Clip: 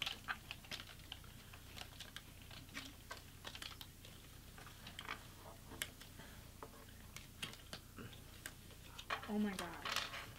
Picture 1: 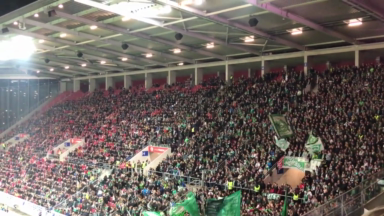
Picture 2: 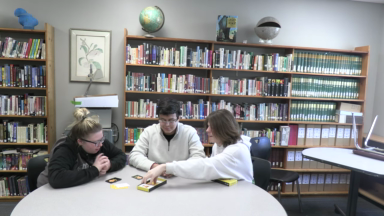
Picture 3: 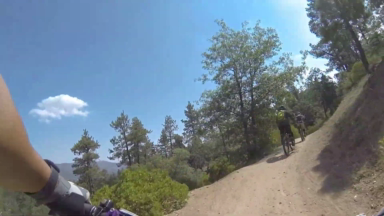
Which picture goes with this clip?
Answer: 2